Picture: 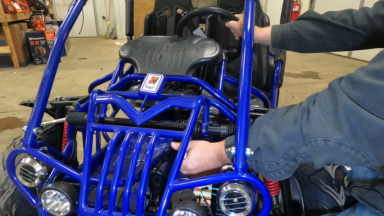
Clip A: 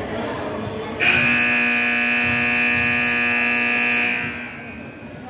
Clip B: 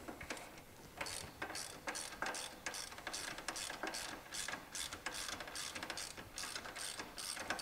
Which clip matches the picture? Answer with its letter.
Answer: B